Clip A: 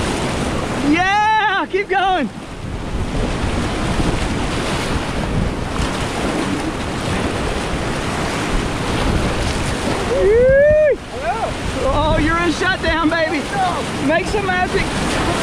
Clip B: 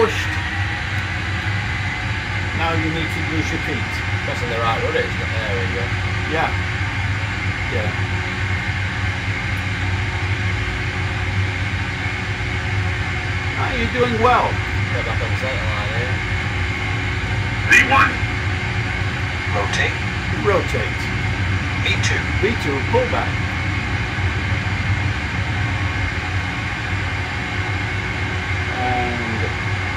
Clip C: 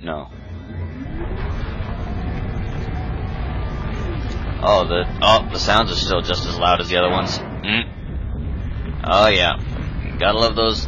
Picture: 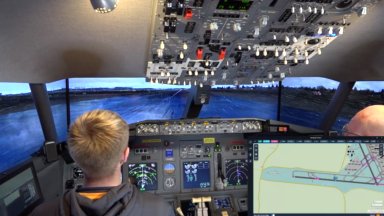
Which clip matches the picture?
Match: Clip B